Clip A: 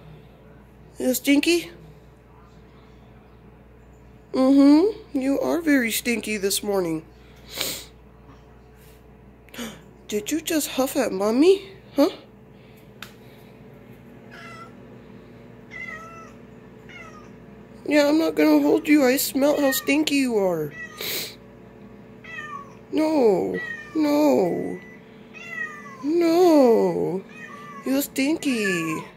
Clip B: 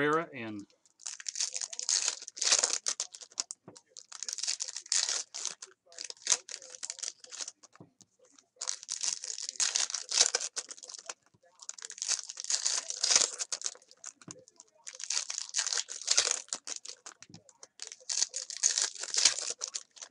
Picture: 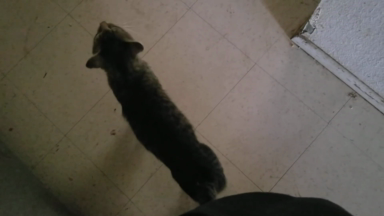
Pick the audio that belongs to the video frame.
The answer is A